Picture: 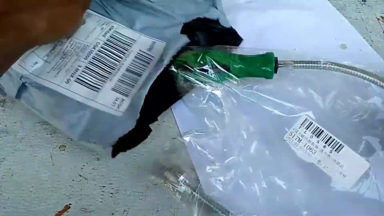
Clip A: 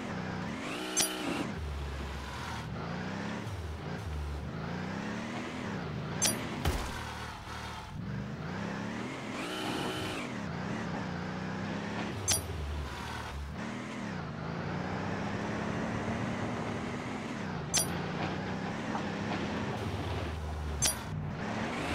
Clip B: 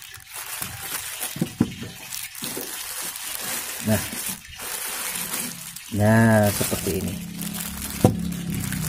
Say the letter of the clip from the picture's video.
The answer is B